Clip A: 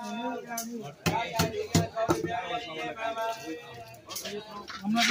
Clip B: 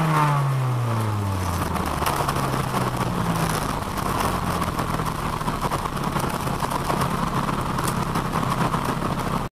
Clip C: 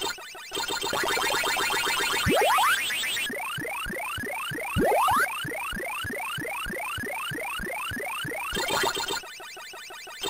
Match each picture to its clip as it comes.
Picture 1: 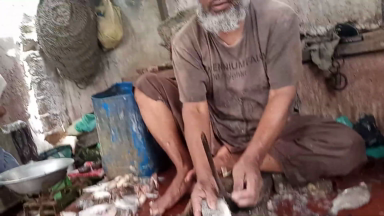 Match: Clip A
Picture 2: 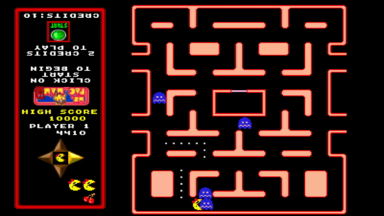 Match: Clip C